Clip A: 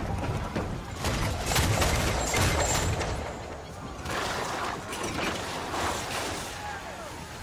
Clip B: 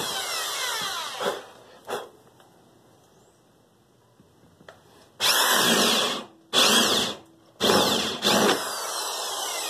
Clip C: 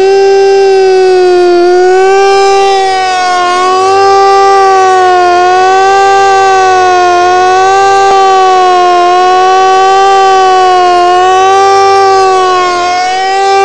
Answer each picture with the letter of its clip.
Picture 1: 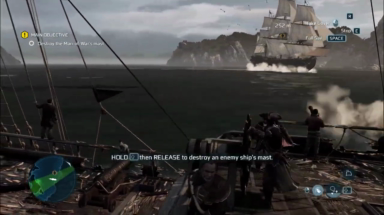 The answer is A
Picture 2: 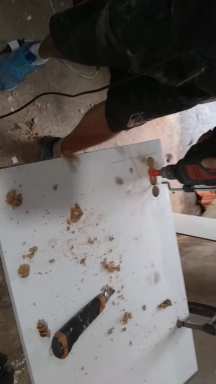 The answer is B